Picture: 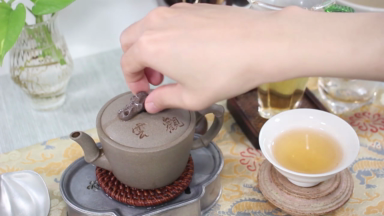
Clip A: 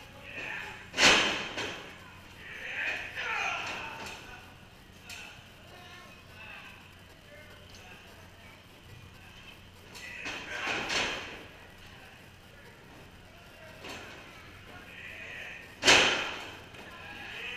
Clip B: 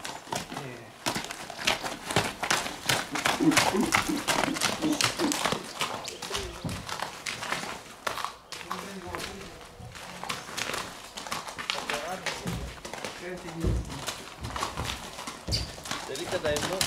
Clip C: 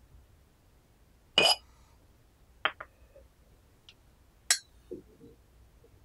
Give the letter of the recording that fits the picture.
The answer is C